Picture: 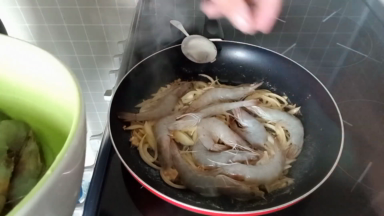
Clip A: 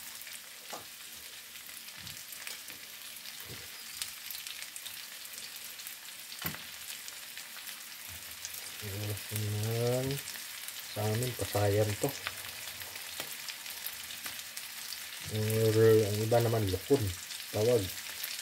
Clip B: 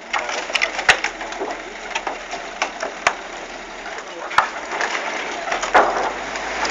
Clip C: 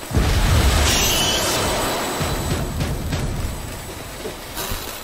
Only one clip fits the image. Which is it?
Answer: A